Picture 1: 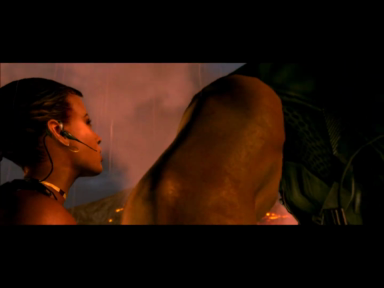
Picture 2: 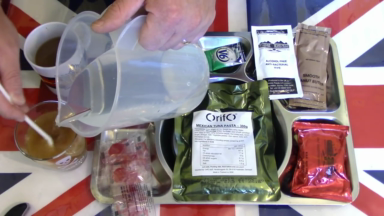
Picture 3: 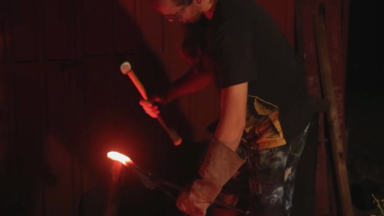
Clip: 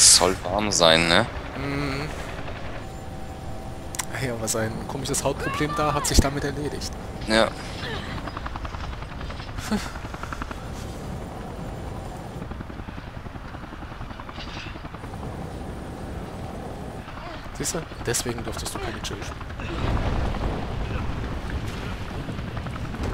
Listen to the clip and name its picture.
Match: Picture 1